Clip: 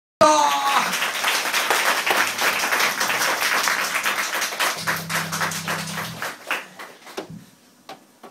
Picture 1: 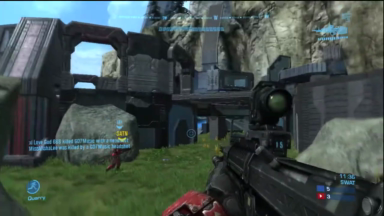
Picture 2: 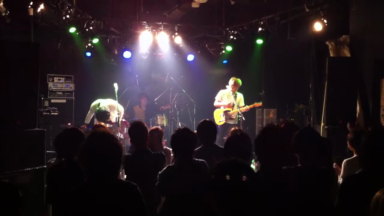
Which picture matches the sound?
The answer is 2